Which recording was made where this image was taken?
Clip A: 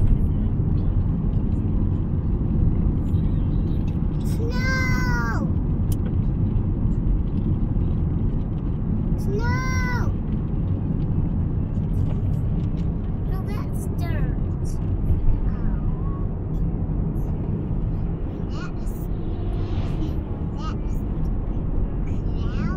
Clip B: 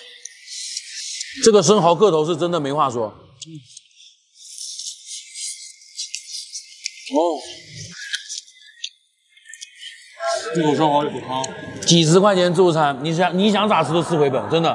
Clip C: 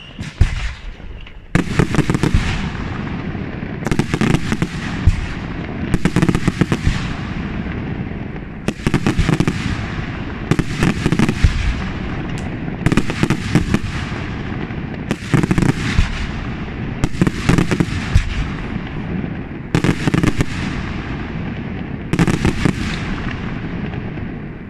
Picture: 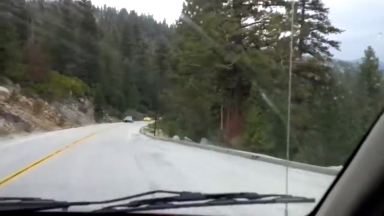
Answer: A